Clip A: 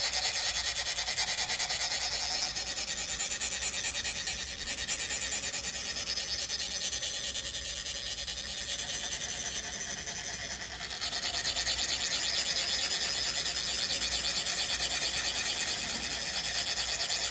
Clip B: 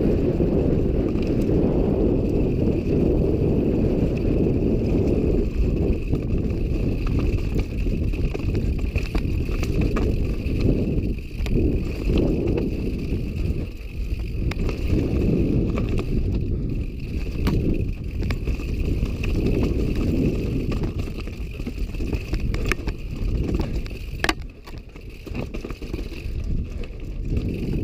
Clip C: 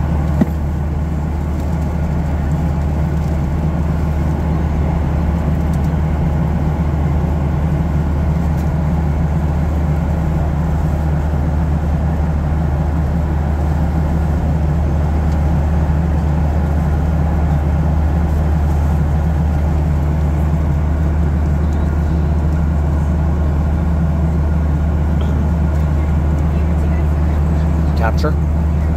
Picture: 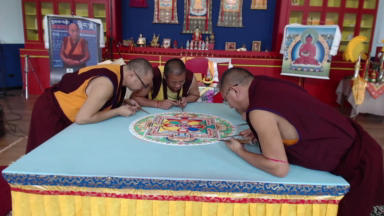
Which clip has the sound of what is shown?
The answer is A